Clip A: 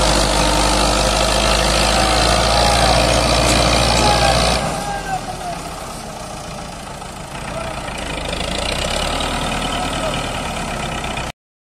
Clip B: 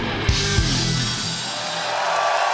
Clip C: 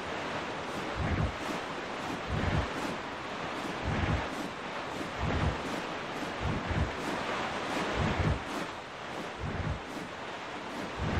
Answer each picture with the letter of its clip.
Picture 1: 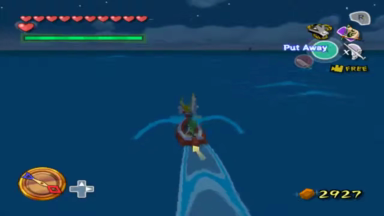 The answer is C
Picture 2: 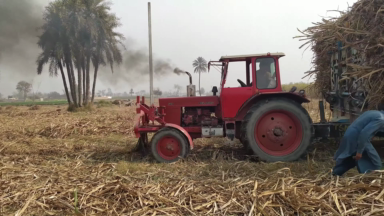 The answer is A